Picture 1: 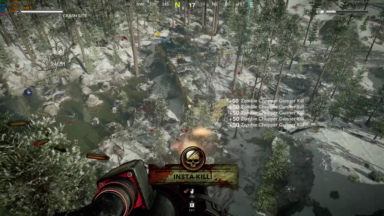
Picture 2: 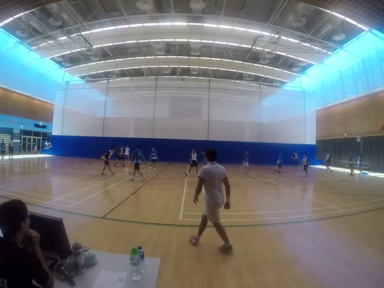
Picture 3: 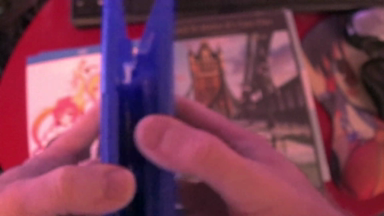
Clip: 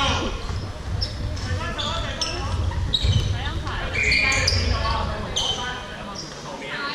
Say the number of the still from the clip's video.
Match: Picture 2